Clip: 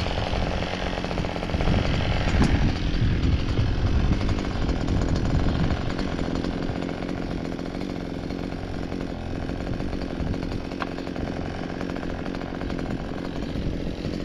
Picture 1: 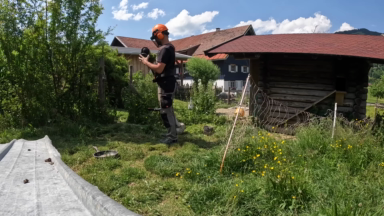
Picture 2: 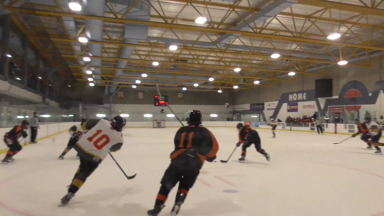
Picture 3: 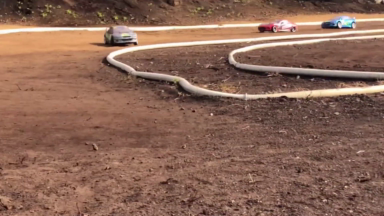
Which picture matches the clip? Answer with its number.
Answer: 1